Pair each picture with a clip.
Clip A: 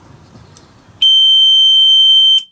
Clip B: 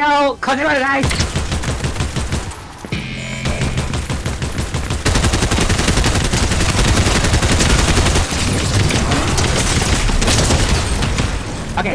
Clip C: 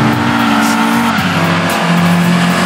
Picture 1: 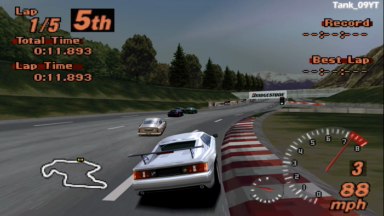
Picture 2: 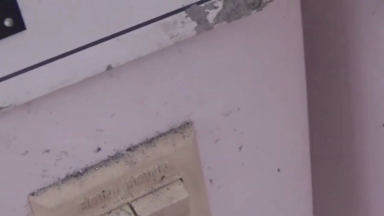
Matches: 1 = C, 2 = A